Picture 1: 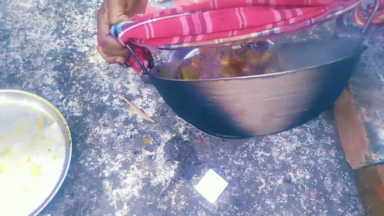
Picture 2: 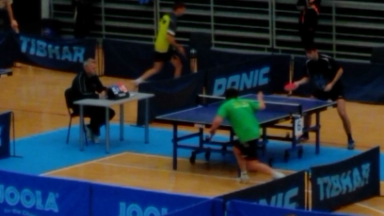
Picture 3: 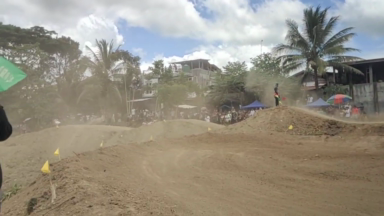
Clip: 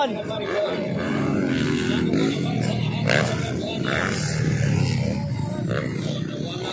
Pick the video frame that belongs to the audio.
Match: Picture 3